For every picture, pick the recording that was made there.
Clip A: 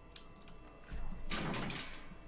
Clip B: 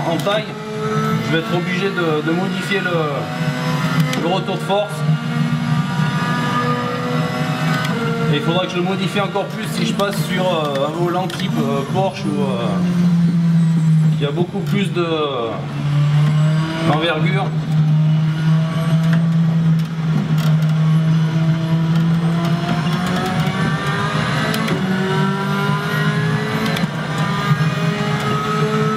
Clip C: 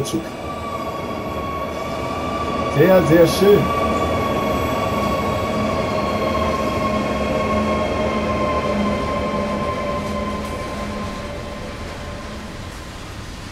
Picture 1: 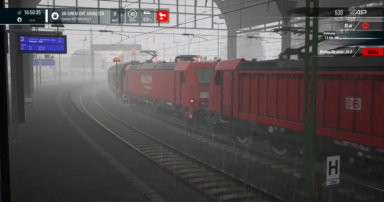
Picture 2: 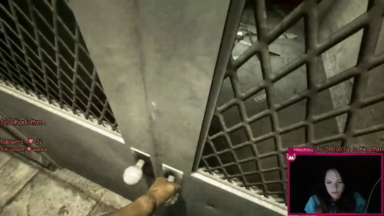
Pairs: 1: C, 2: A